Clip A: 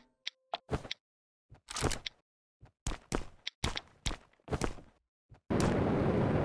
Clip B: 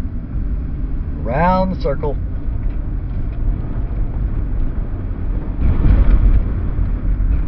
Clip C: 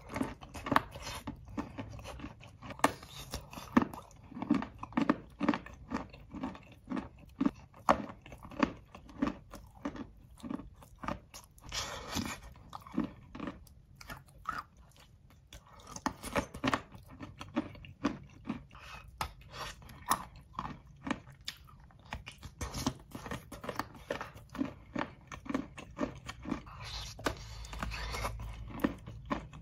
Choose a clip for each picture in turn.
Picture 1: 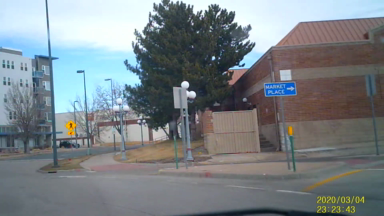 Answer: B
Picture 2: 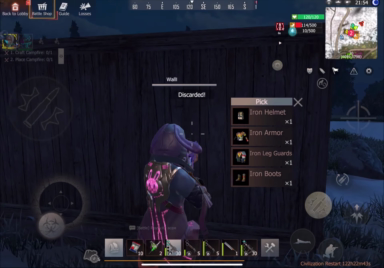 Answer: A